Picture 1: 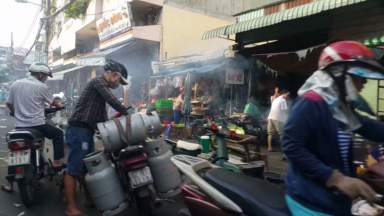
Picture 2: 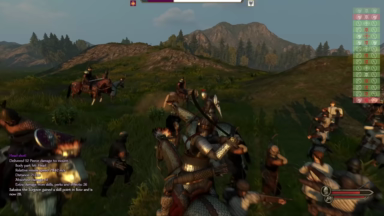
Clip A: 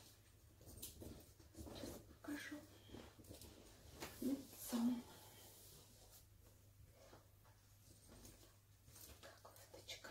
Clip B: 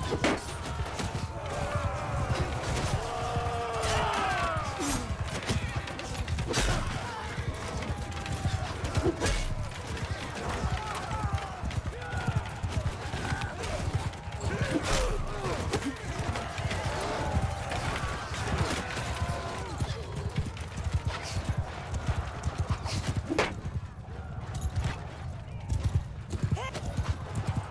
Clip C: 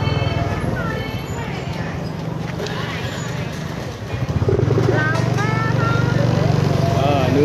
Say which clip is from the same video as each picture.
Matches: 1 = C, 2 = B